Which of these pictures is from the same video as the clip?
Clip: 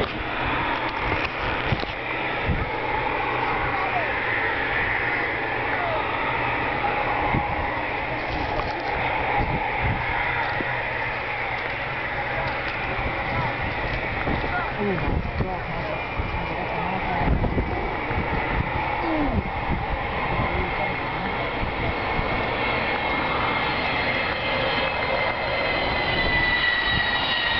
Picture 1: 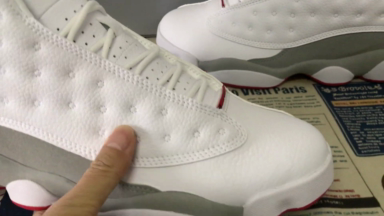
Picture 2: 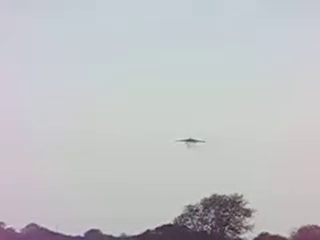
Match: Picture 2